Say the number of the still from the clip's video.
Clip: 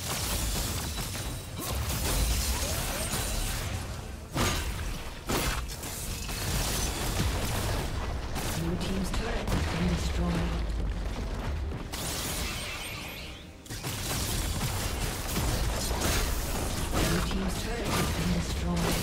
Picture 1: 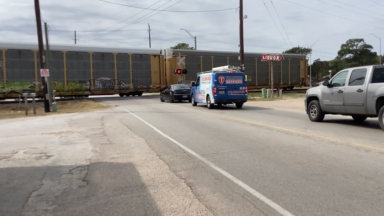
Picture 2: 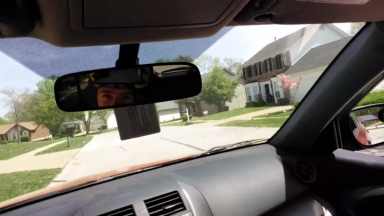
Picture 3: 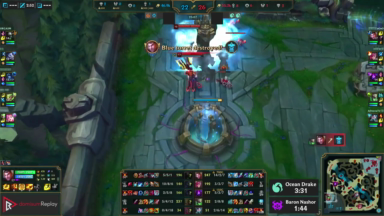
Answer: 3